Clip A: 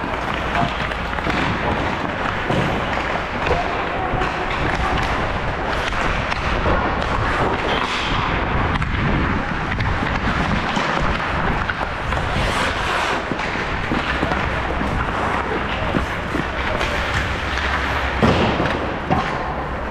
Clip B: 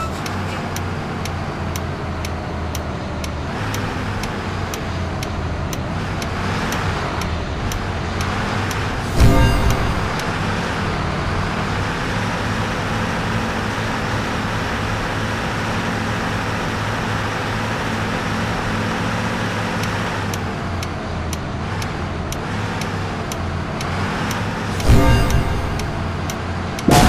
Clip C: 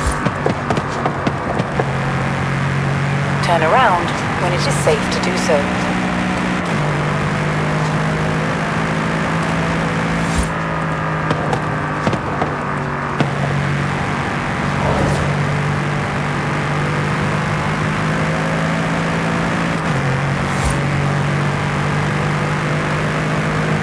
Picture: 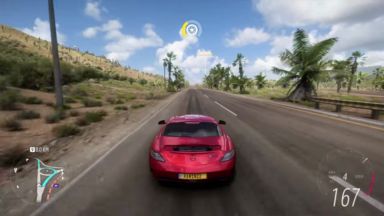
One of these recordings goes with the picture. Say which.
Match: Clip C